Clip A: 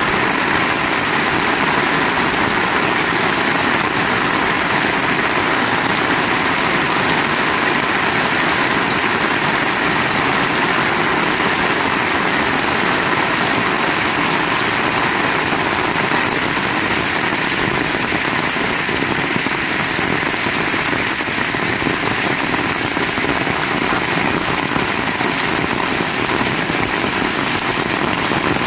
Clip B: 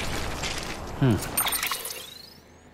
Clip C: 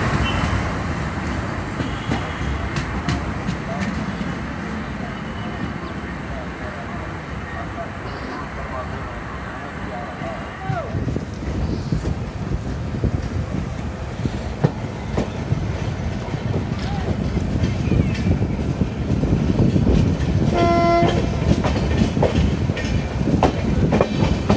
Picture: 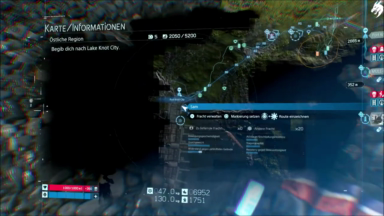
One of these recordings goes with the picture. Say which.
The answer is B